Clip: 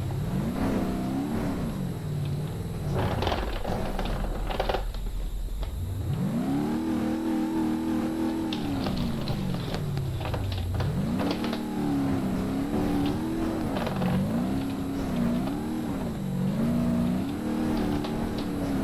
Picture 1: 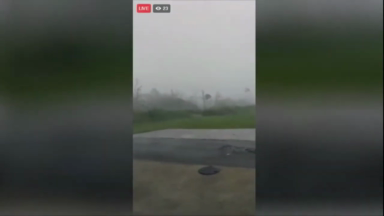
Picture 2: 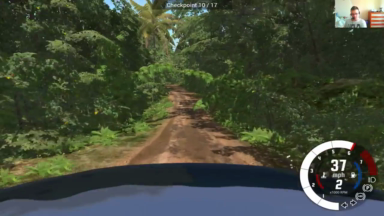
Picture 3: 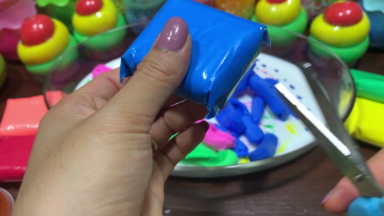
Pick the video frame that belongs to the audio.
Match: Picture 2